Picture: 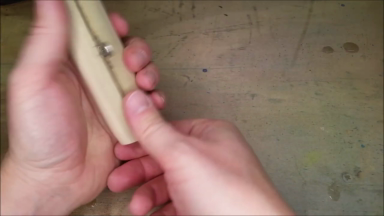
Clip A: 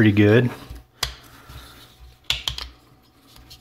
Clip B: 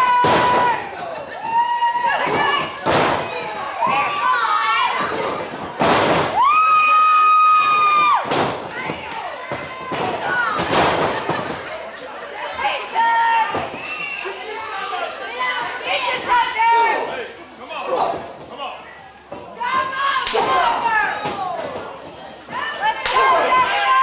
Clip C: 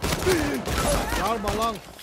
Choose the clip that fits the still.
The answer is A